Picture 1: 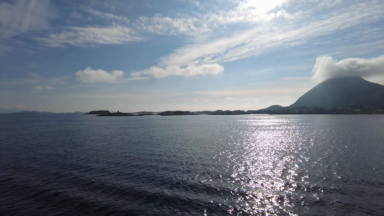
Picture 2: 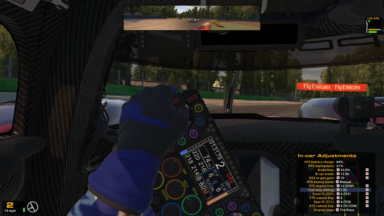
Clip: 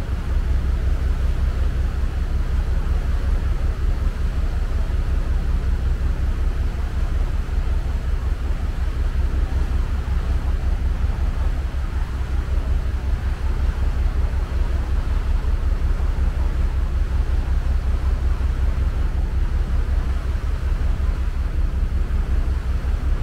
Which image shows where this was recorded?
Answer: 1